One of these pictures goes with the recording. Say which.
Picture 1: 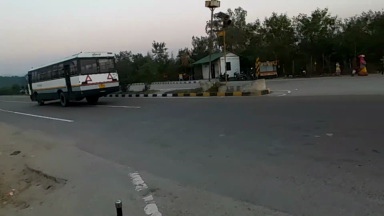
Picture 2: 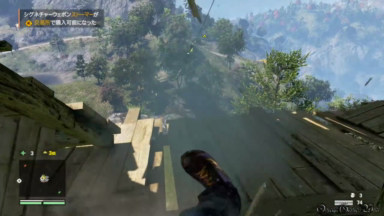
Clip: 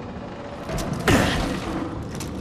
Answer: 2